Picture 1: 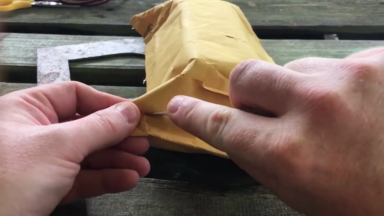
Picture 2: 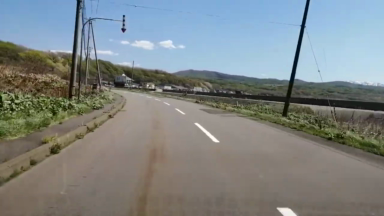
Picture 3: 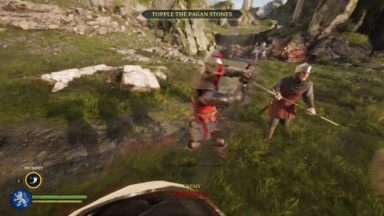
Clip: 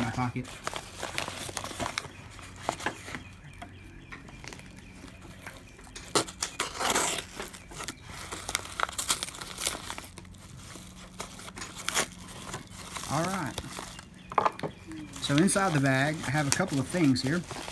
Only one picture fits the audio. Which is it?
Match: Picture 1